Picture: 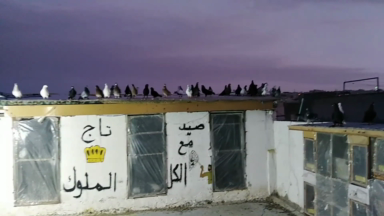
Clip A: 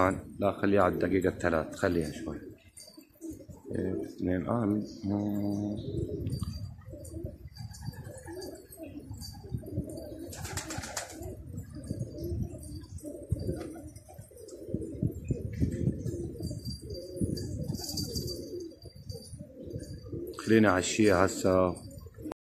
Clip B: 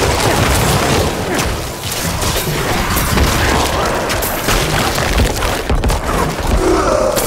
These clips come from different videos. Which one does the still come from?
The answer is A